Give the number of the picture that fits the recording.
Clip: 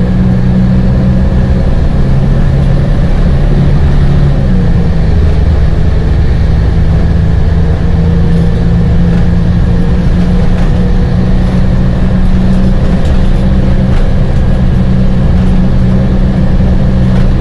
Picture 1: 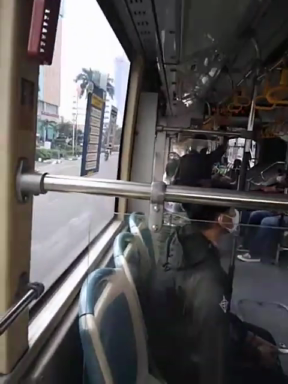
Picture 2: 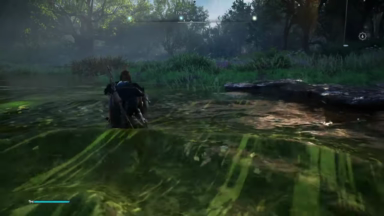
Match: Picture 1